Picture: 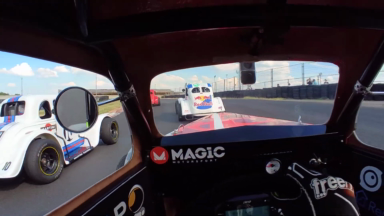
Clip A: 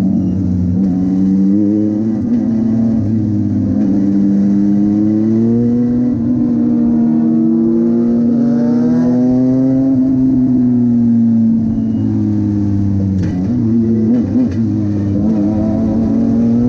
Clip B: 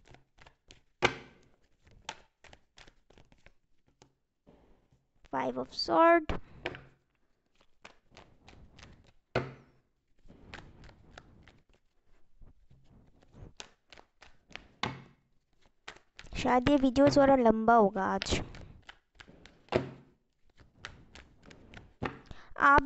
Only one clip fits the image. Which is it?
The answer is A